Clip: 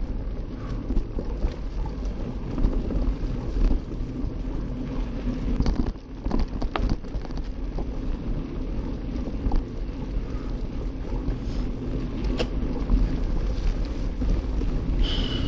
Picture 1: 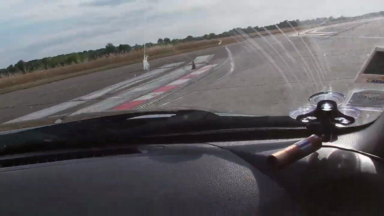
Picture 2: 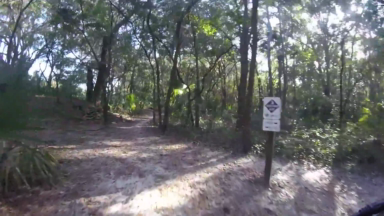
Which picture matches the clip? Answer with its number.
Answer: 2